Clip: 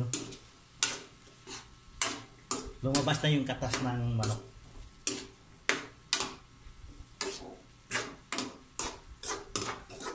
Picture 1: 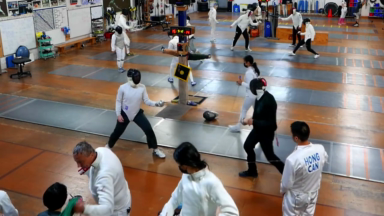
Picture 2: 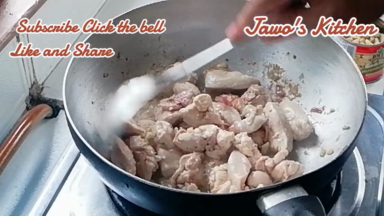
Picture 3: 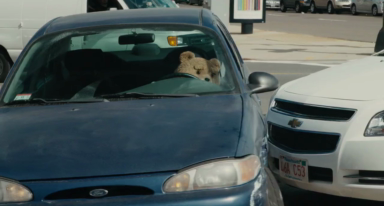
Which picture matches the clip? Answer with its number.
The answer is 2